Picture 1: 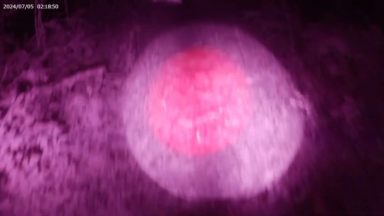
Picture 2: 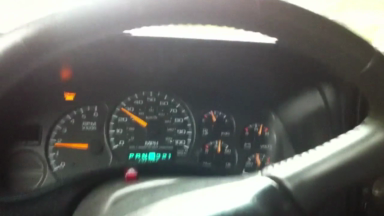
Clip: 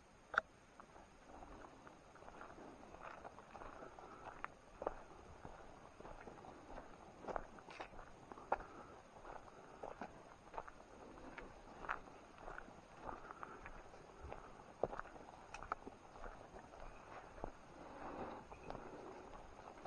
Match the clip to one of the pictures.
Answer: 1